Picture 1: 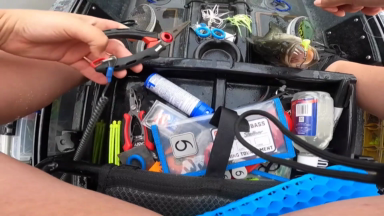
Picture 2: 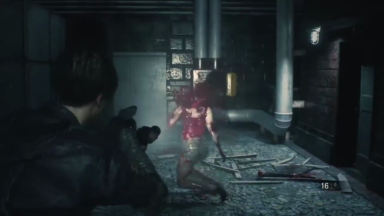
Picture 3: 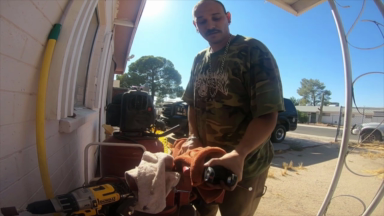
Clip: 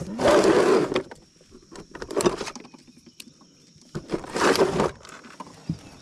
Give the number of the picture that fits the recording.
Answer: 1